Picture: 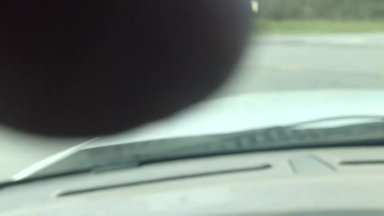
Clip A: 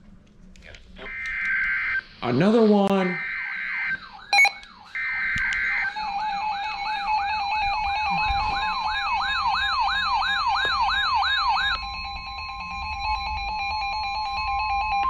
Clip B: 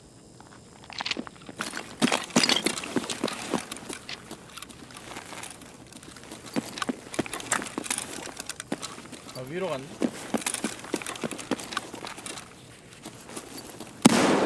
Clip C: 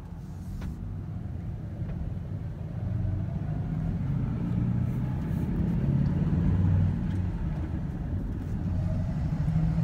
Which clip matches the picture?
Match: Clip C